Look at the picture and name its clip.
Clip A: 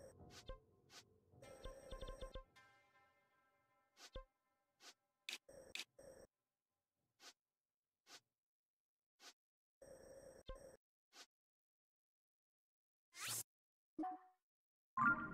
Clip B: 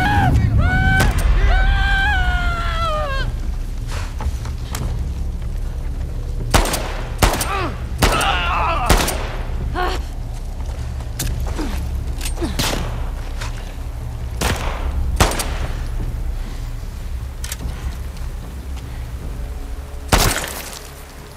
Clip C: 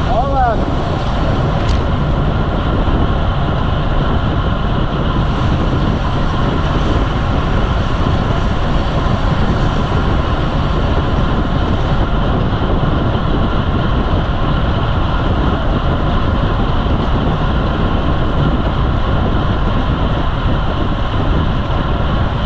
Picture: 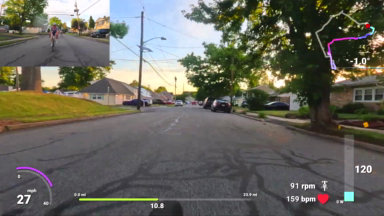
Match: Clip C